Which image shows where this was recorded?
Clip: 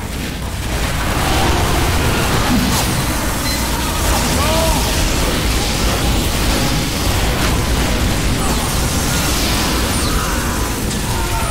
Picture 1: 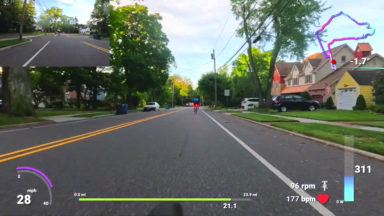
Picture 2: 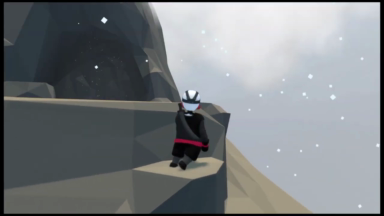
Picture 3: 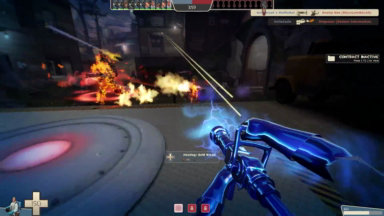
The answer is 3